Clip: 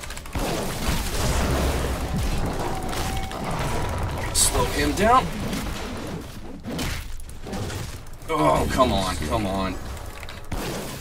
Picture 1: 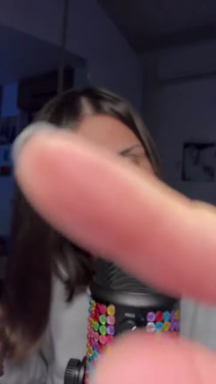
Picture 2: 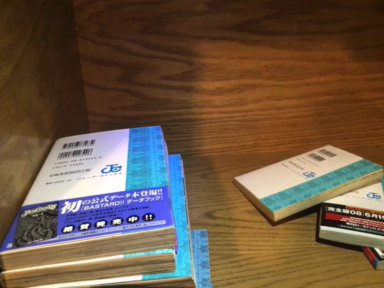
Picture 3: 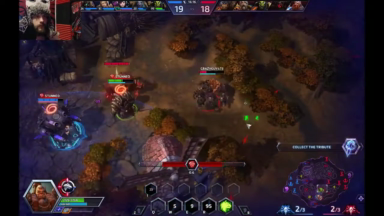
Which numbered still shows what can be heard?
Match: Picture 3